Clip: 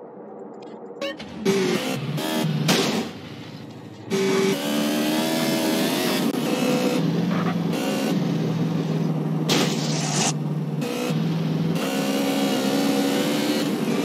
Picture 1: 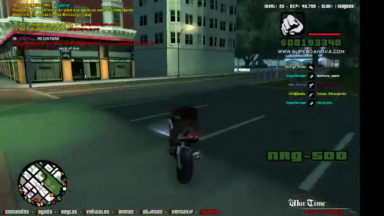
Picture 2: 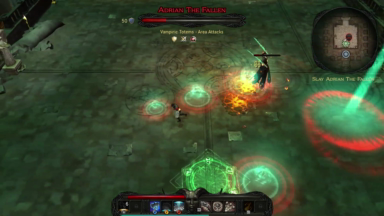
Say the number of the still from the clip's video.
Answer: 1